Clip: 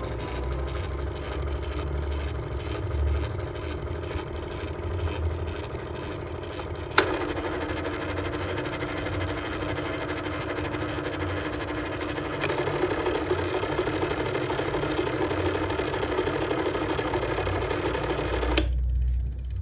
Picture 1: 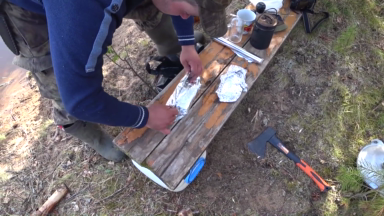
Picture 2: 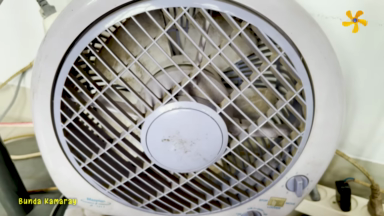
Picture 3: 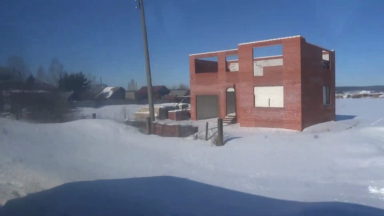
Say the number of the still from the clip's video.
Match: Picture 2